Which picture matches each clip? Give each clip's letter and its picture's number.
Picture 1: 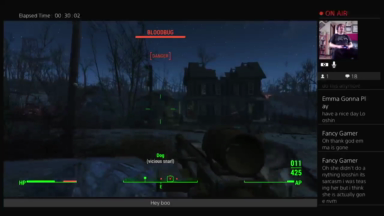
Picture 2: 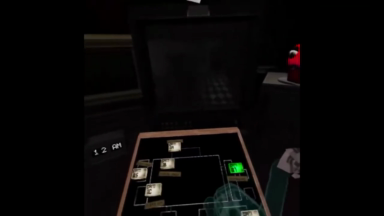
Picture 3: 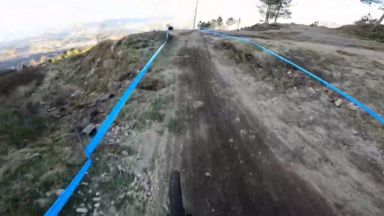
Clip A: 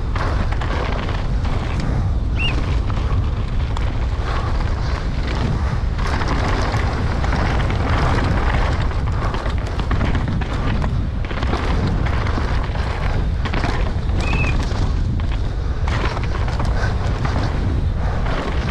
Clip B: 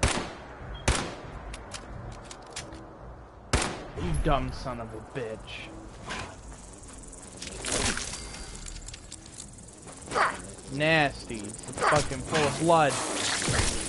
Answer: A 3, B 1